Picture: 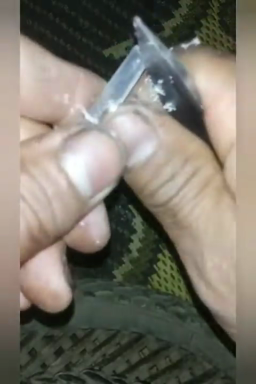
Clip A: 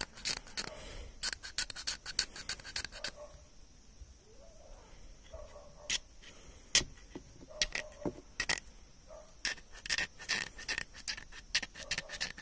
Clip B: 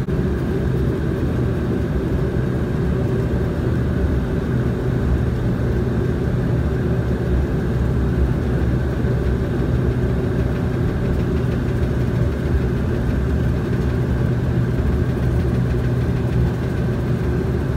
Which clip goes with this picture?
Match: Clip A